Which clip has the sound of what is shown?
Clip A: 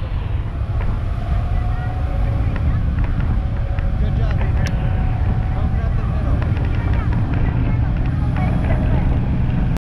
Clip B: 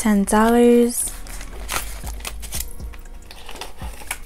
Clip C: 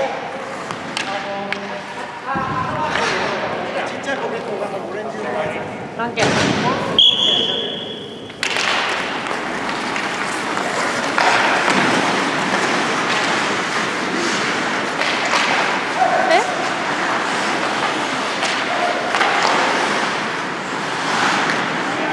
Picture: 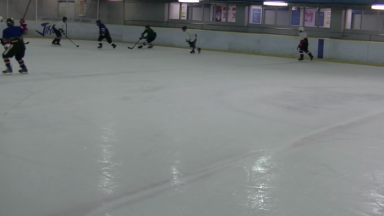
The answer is C